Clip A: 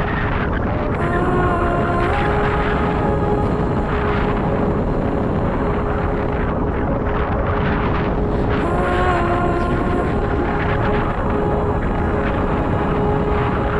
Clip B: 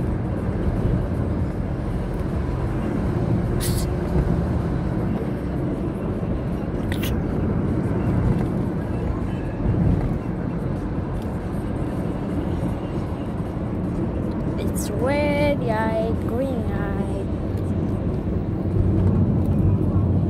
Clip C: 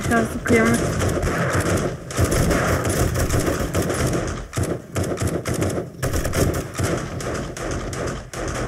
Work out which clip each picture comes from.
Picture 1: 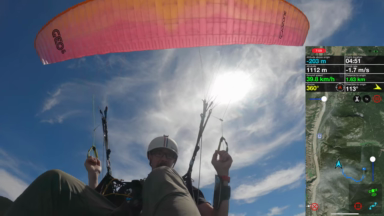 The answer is A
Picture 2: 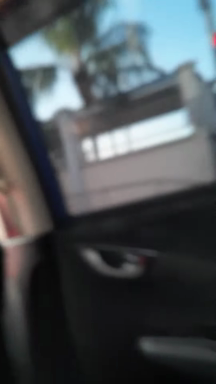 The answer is B